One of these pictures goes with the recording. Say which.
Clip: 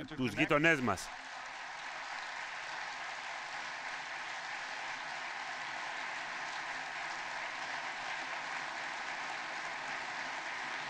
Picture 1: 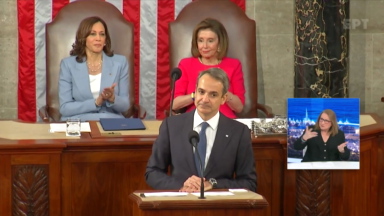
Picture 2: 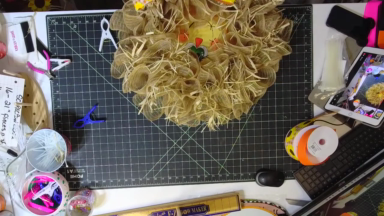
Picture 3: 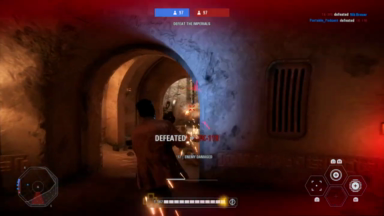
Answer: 1